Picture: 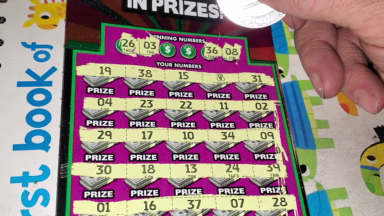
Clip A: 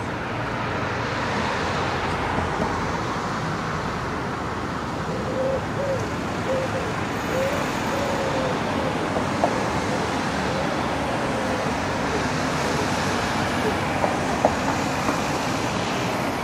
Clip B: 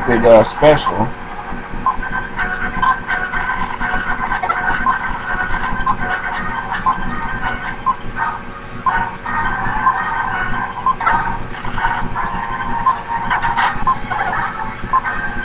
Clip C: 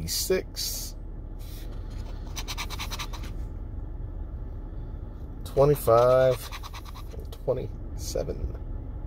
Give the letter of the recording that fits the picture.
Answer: C